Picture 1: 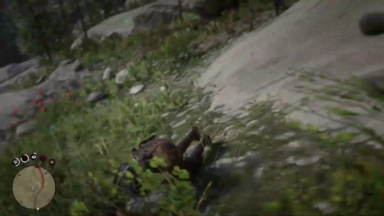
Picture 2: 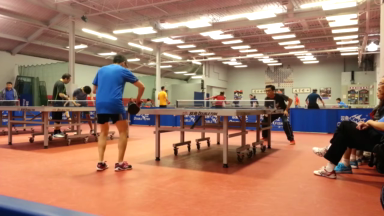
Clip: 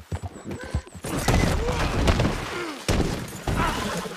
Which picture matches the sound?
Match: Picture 1